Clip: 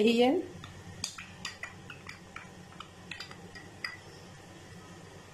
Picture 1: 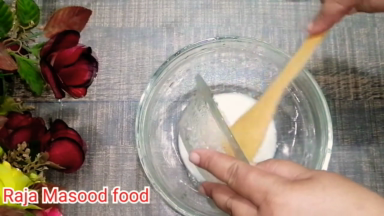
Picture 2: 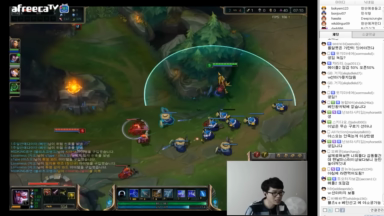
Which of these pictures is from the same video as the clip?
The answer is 1